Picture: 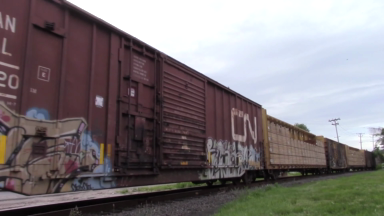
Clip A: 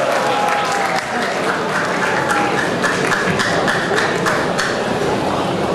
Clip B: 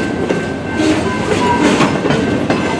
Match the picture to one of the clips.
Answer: B